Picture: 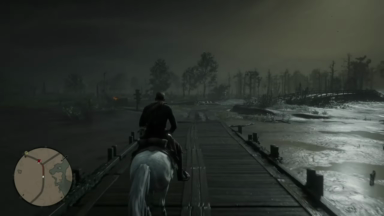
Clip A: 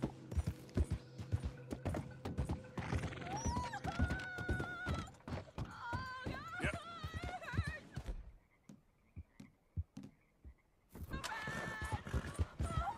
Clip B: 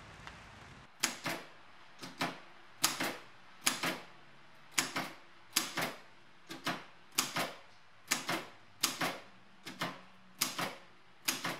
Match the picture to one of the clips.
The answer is A